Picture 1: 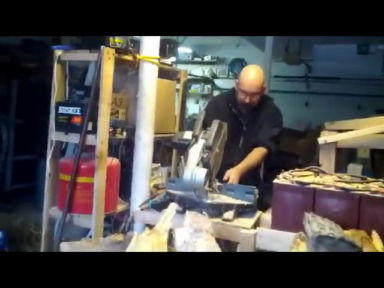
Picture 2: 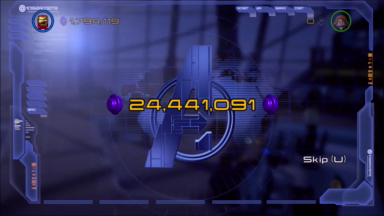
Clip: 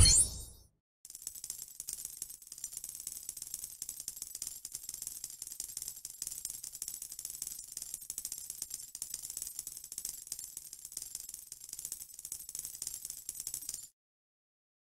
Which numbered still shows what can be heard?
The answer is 2